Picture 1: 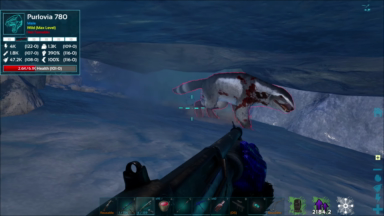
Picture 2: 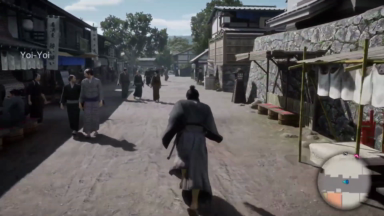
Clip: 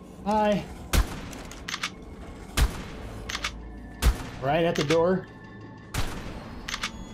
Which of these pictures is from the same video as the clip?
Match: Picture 1